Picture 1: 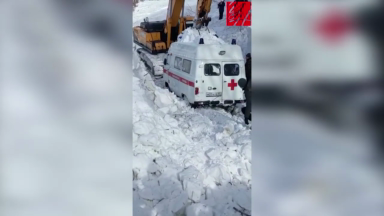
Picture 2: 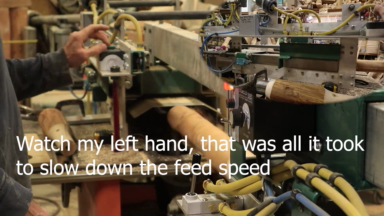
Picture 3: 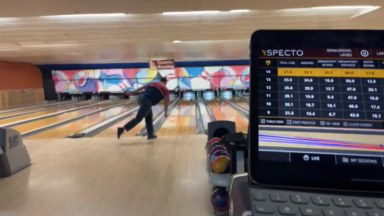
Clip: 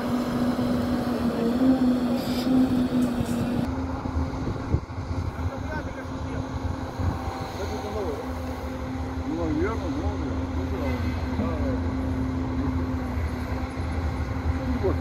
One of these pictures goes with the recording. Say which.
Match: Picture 1